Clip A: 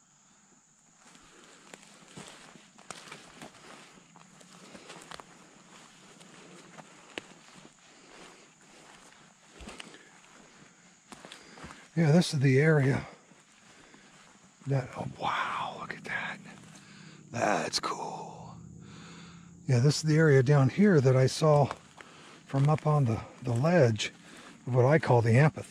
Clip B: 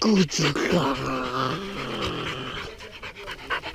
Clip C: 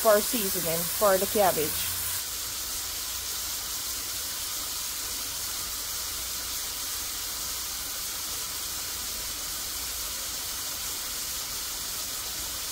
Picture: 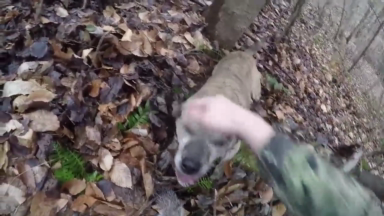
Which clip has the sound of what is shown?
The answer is B